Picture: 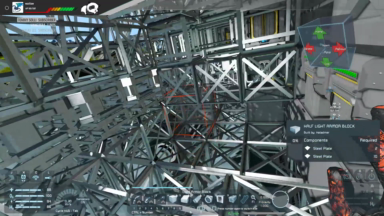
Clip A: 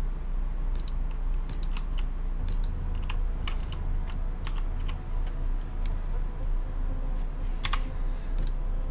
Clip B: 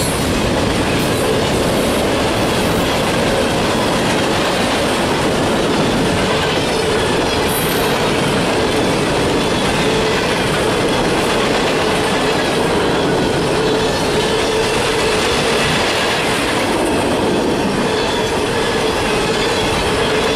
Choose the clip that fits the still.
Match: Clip A